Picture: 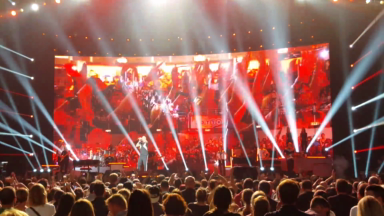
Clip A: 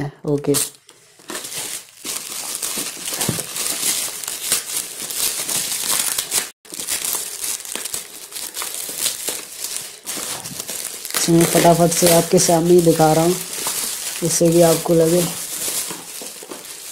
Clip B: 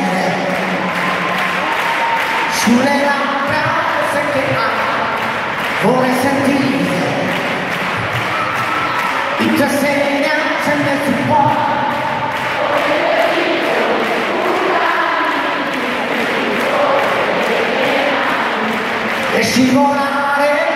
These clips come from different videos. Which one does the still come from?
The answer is B